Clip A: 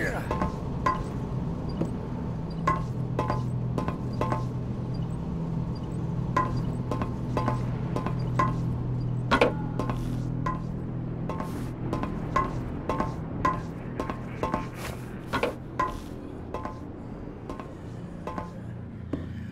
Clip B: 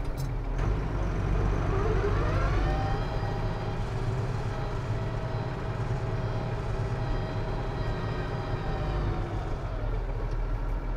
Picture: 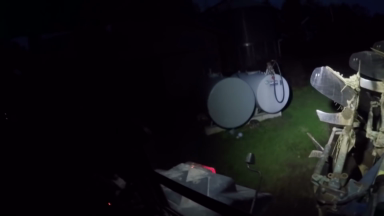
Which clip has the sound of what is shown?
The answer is B